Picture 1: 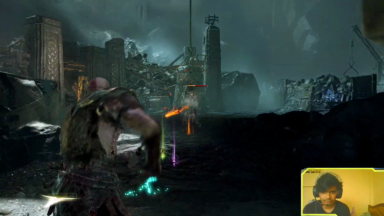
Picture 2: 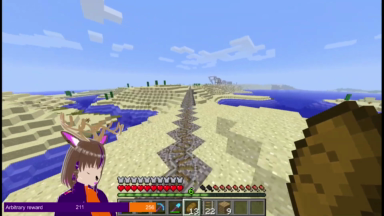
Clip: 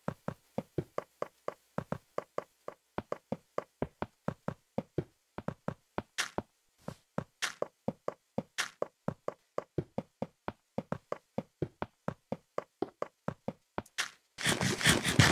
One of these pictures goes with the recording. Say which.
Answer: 2